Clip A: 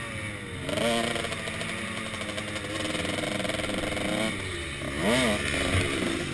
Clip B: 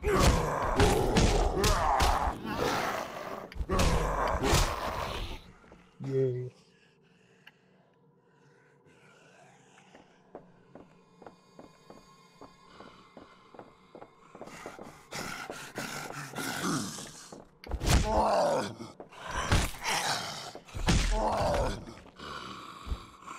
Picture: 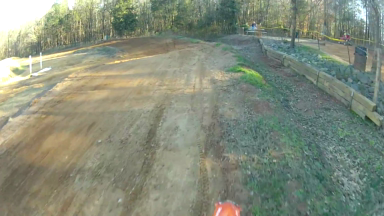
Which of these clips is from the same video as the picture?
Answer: A